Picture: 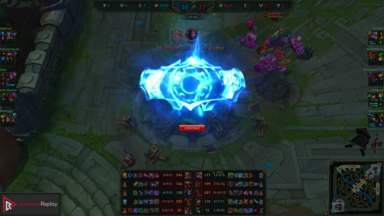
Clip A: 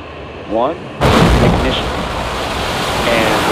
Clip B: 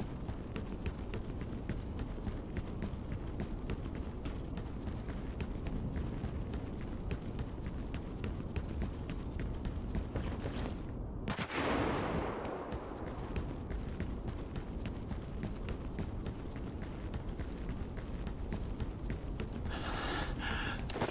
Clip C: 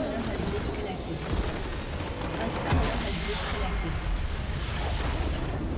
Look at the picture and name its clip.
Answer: C